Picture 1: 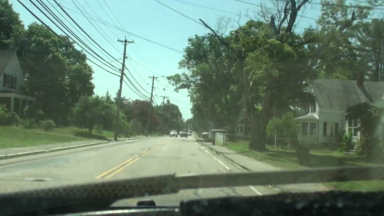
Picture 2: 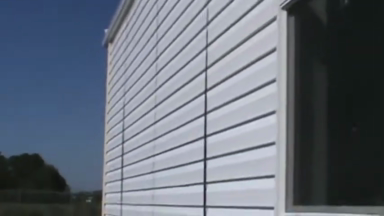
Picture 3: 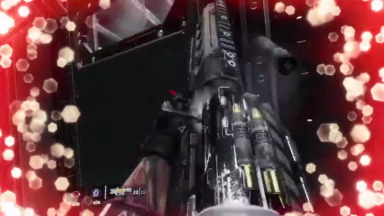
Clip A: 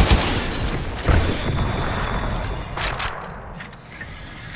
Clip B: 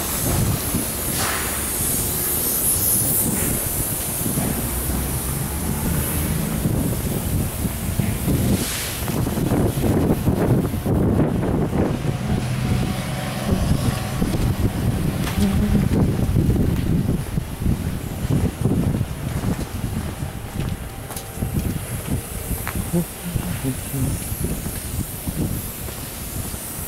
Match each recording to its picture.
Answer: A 3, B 2